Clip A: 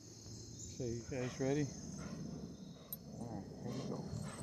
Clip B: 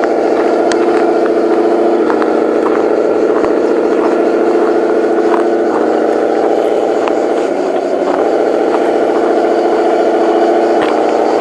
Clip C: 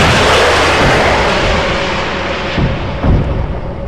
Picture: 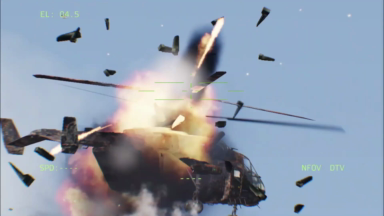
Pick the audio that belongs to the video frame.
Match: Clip C